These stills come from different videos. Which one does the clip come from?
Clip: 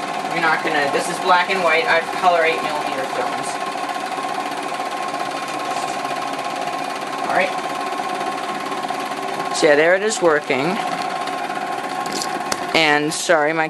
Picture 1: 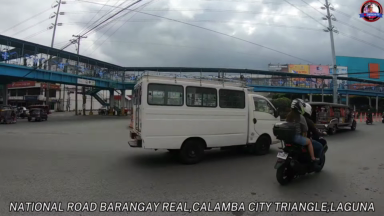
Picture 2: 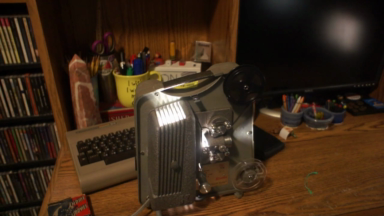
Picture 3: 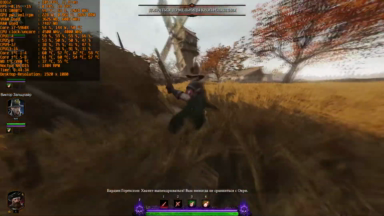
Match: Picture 2